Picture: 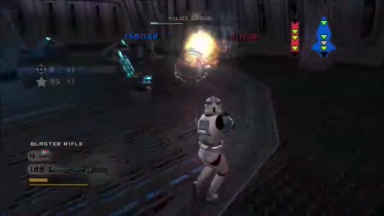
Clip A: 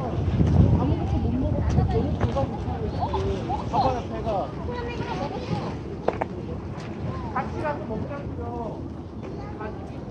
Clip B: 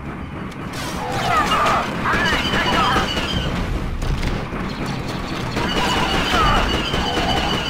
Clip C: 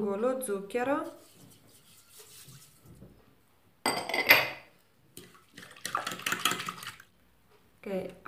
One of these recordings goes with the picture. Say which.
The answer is B